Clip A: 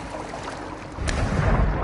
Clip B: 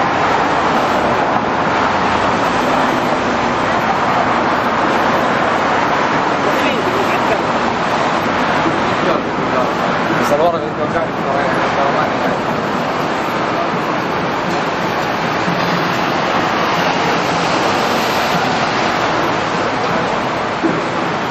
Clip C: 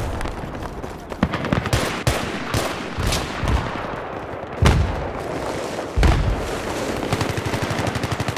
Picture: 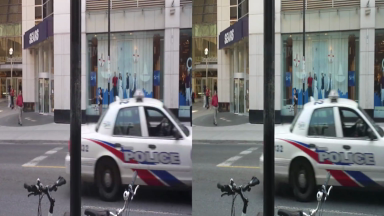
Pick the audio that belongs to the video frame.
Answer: B